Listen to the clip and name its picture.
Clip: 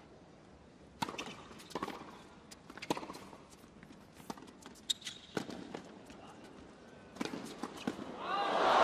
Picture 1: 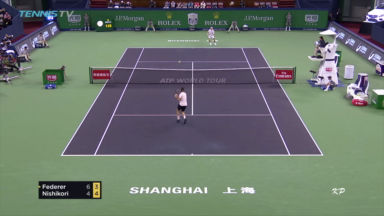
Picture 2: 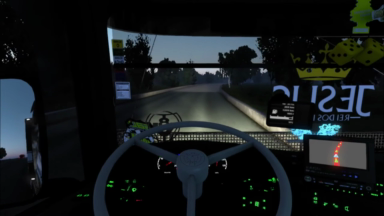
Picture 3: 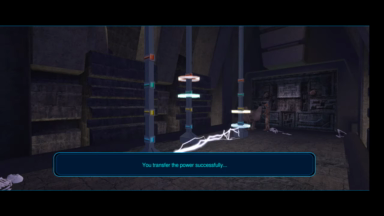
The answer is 1